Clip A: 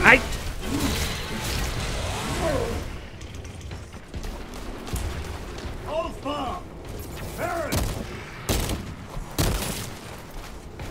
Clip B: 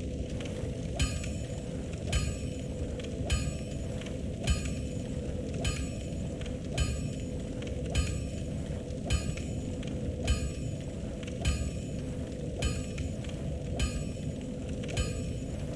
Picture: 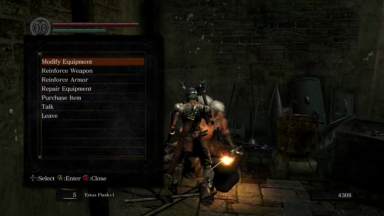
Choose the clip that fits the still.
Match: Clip B